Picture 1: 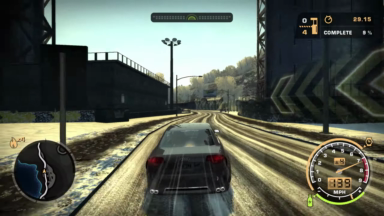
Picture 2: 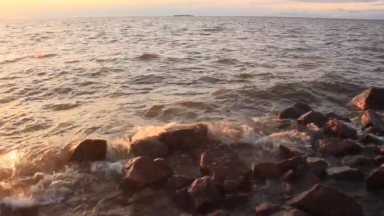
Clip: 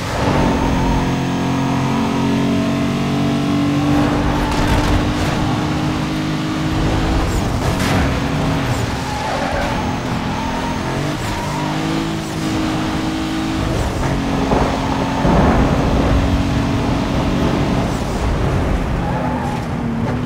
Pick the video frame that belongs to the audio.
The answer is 1